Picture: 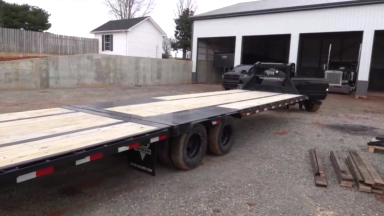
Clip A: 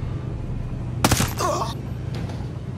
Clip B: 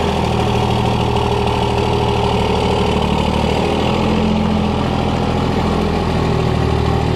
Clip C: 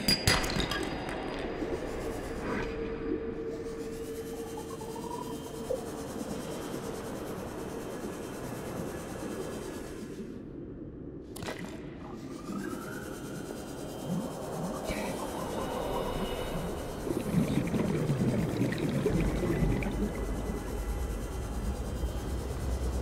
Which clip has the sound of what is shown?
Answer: B